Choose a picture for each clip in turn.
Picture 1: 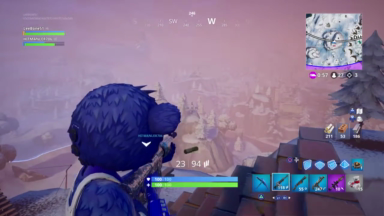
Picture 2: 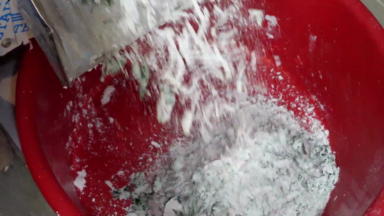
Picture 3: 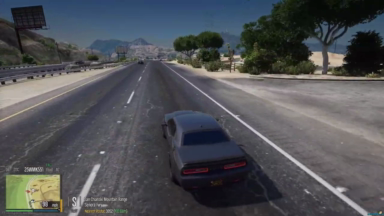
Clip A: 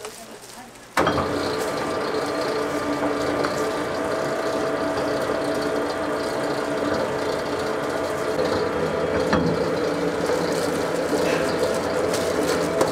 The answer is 2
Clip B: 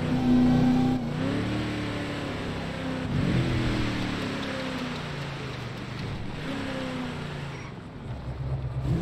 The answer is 3